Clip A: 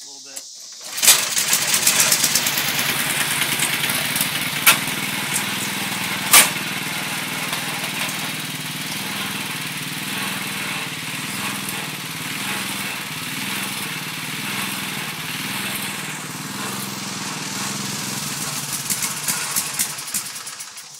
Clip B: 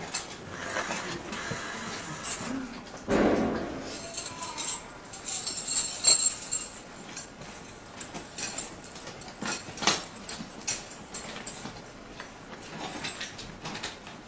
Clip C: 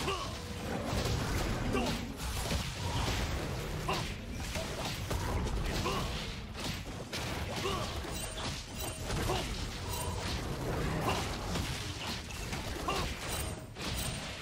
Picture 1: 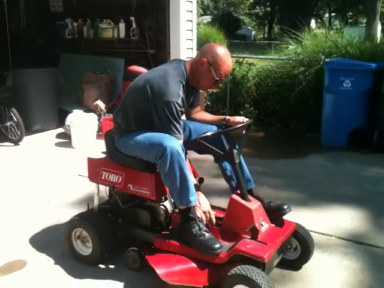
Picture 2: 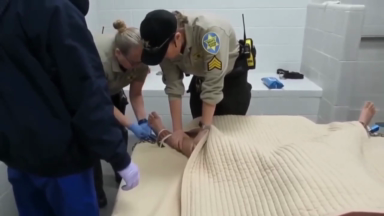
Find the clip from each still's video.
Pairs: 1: A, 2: B